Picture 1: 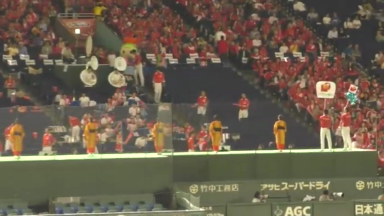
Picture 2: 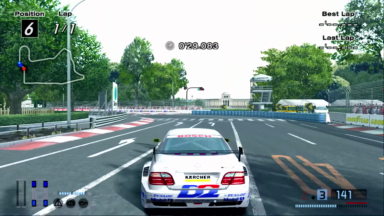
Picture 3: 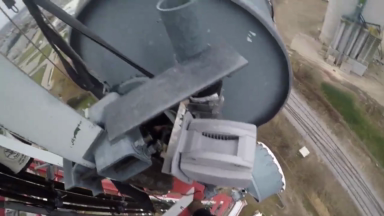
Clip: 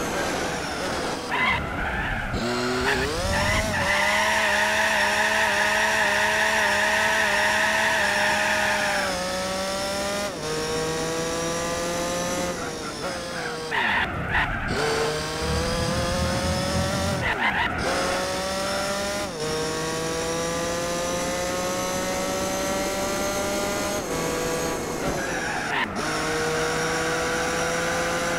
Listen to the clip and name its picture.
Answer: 2